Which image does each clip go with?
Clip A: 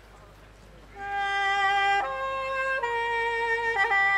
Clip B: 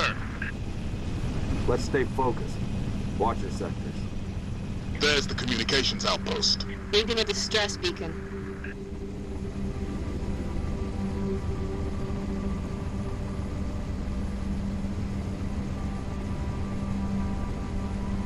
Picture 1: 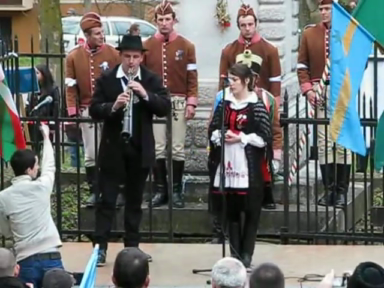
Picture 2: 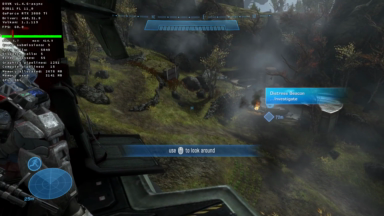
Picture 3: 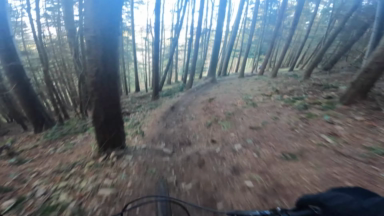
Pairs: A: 1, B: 2